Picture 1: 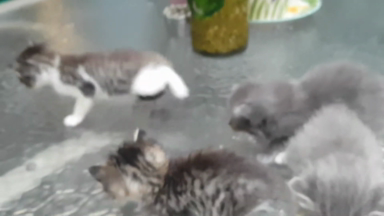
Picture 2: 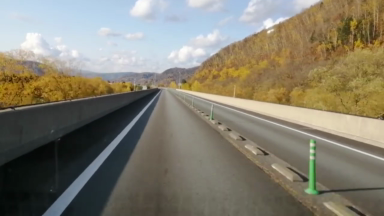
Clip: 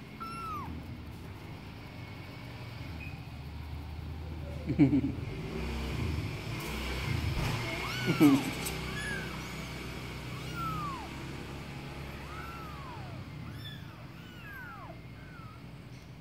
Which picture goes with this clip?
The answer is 1